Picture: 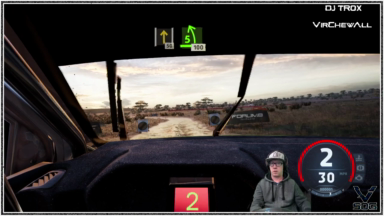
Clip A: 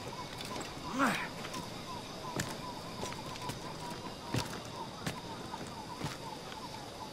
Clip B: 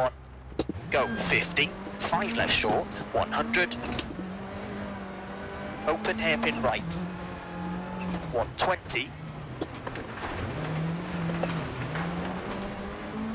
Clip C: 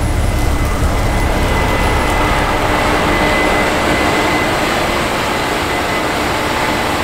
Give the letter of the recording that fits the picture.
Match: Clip B